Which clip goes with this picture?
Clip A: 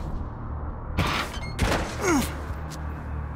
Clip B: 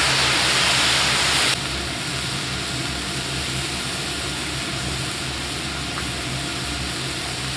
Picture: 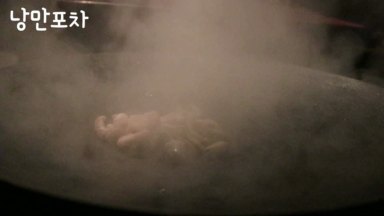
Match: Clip B